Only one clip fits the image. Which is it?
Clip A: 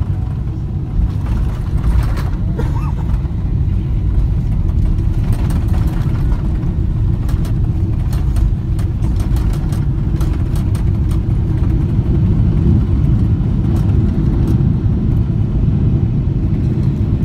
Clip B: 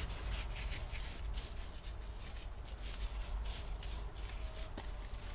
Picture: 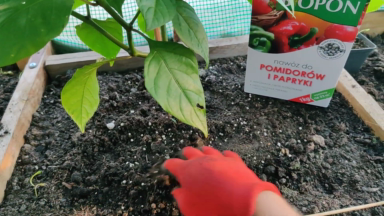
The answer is B